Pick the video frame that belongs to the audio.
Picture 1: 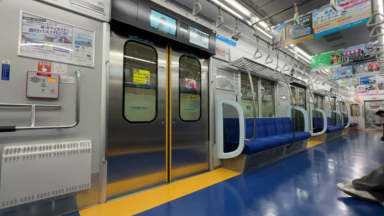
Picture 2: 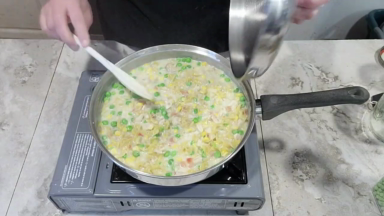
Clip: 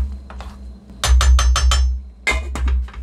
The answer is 2